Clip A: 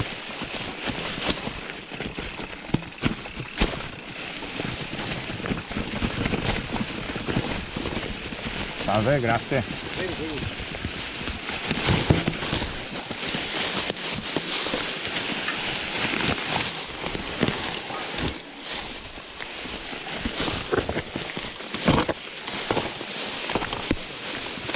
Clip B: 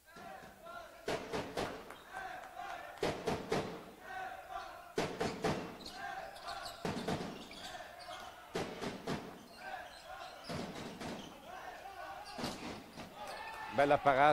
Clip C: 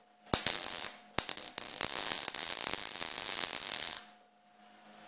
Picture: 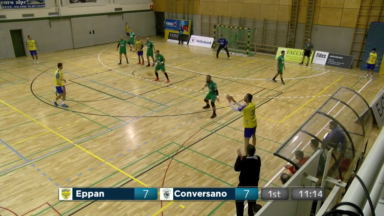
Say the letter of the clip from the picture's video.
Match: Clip B